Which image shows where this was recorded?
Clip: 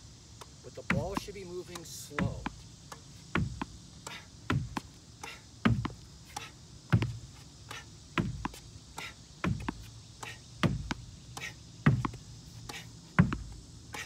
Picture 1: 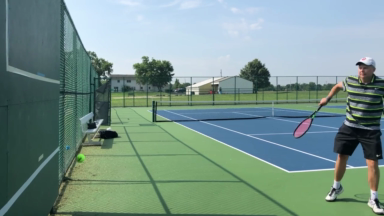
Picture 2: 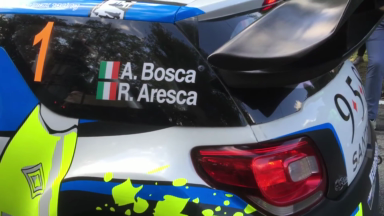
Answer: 1